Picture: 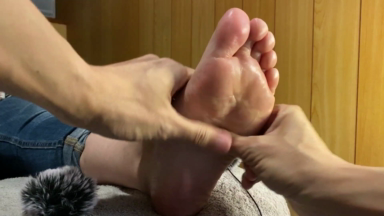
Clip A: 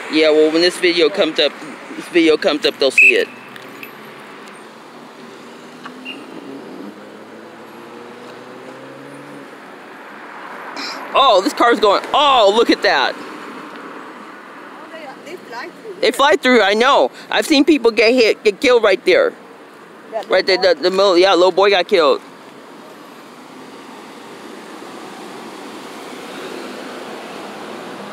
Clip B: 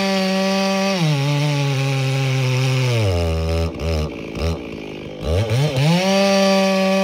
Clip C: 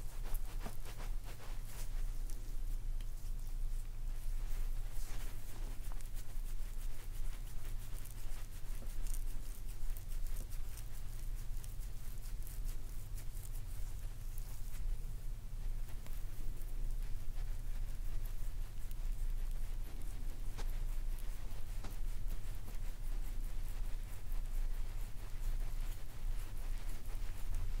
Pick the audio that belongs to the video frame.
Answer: C